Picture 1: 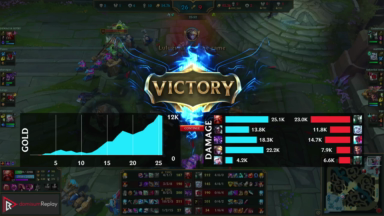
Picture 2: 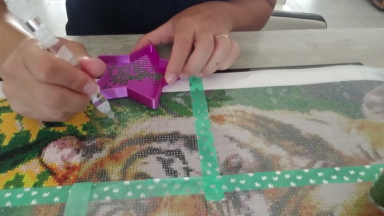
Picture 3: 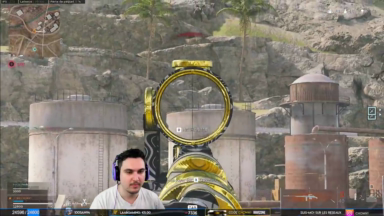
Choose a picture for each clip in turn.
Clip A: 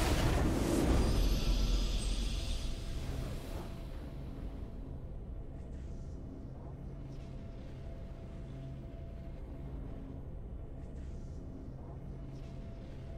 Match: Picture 1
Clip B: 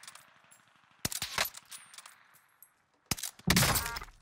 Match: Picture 3